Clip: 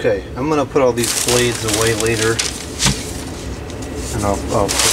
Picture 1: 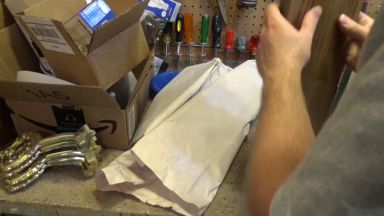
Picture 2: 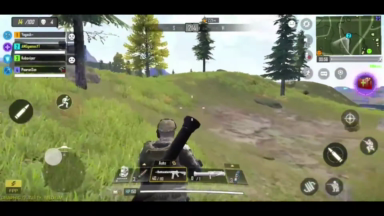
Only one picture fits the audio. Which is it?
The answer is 1